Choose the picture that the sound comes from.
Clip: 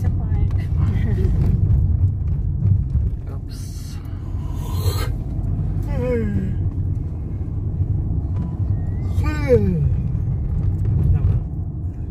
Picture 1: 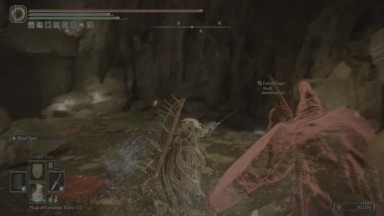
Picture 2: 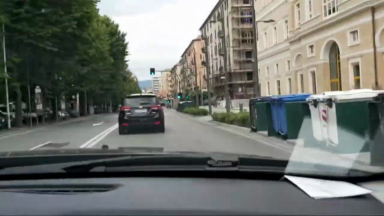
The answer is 2